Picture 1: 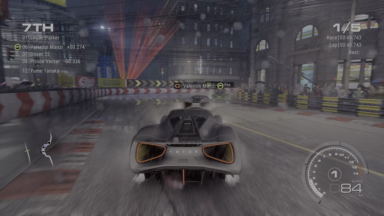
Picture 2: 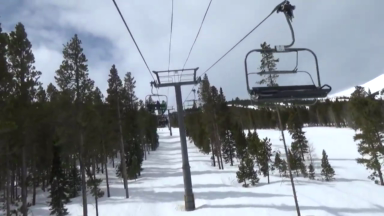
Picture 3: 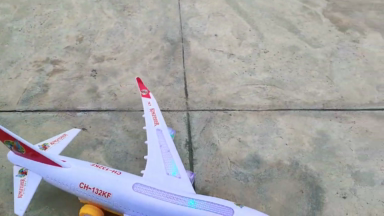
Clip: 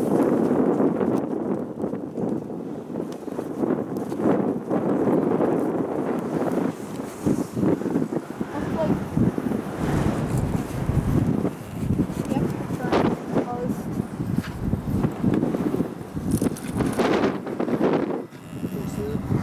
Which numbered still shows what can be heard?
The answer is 2